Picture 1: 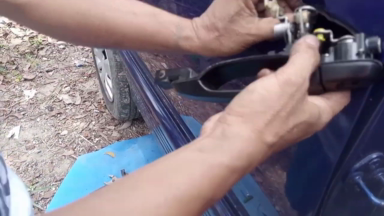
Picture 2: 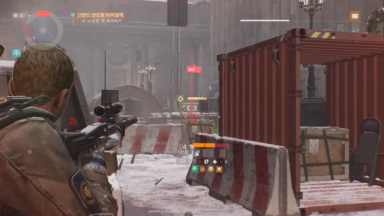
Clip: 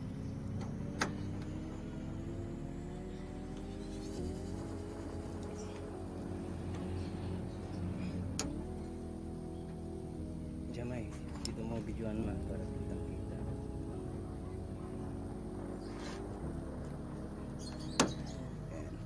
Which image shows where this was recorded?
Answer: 1